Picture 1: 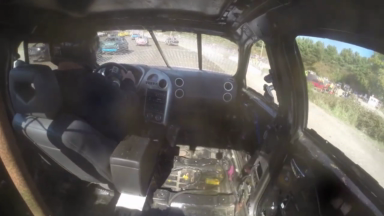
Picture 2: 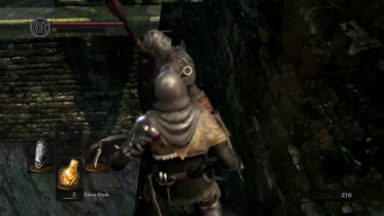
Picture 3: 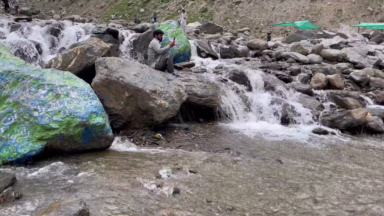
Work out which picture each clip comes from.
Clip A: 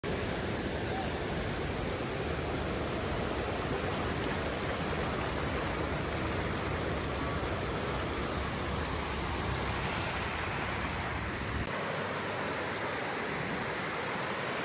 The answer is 3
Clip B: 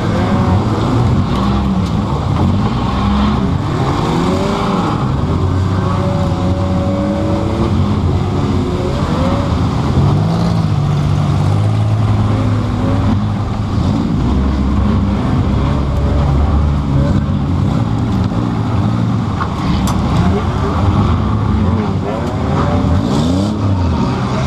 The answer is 1